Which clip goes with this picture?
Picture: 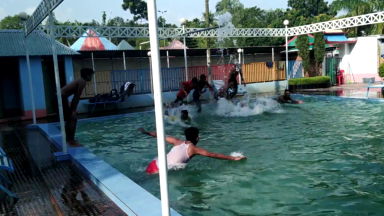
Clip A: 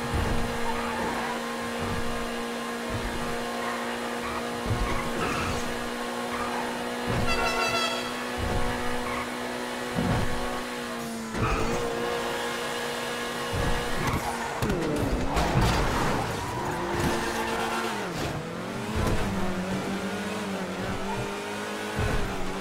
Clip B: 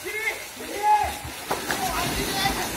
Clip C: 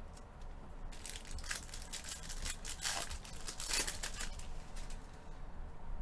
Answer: B